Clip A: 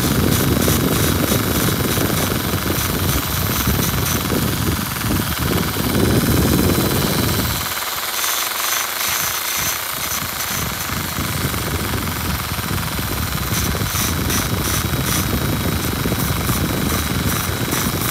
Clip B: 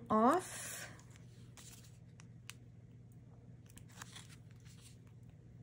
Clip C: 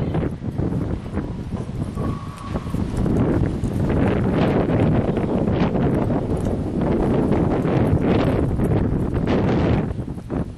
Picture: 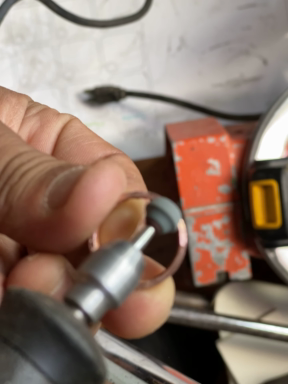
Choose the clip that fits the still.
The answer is A